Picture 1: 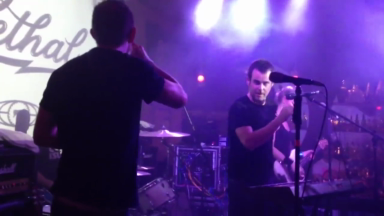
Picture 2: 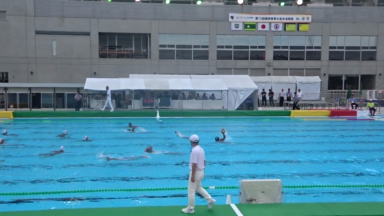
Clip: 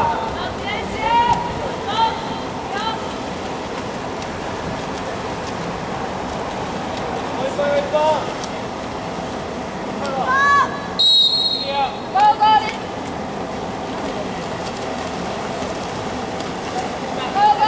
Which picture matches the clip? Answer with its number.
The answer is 2